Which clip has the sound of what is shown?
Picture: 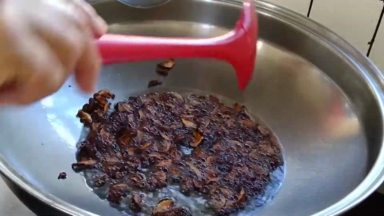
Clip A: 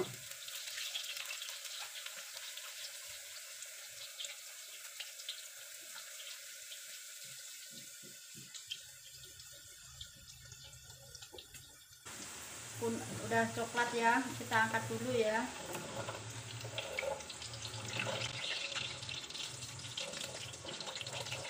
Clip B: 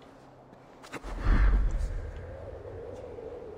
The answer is A